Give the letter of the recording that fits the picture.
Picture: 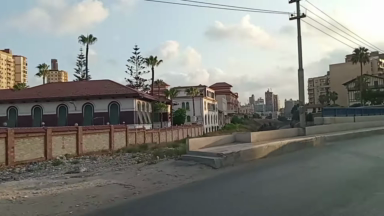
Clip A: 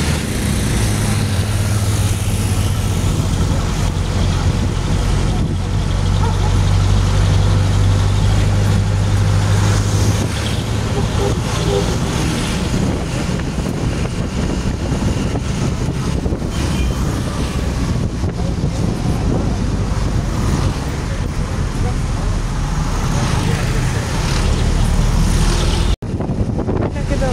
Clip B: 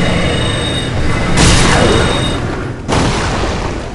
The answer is A